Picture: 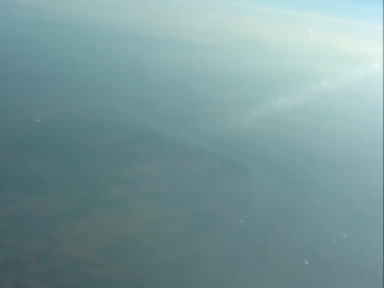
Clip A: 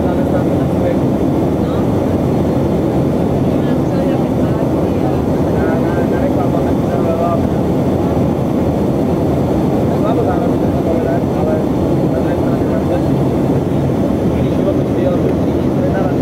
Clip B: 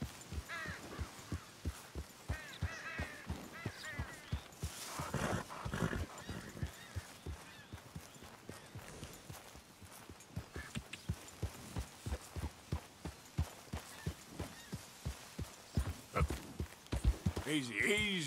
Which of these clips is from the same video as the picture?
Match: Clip A